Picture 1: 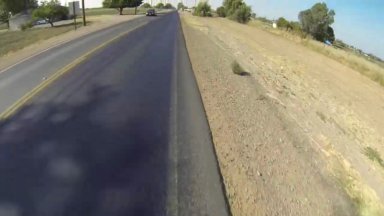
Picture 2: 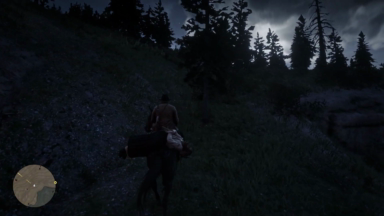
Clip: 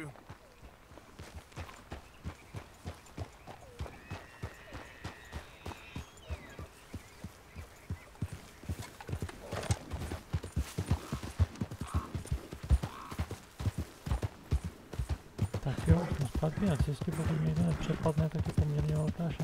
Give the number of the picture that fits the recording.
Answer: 2